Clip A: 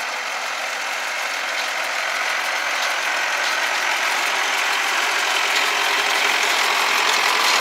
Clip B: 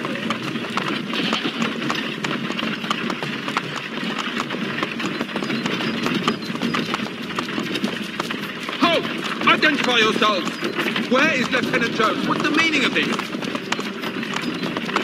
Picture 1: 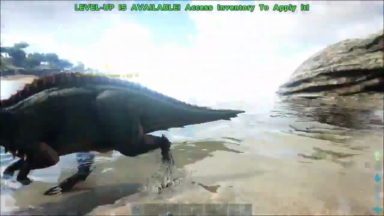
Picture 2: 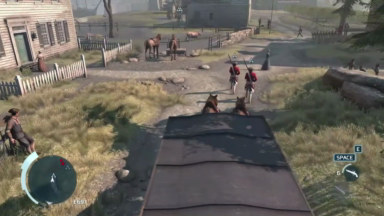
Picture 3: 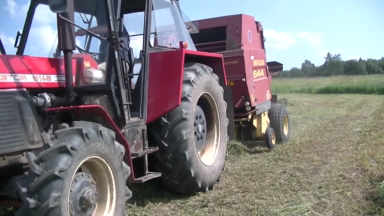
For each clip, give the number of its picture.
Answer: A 3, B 2